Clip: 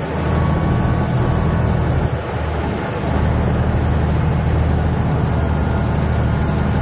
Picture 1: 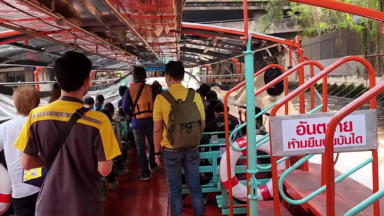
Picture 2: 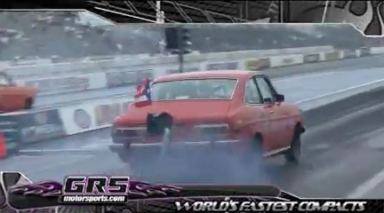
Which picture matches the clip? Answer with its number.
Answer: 1